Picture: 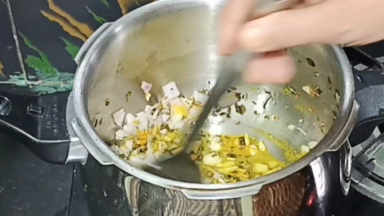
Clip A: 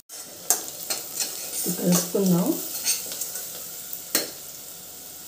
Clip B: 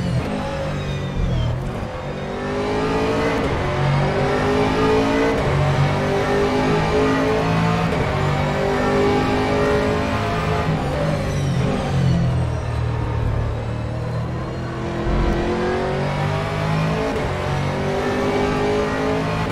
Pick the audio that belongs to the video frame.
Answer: A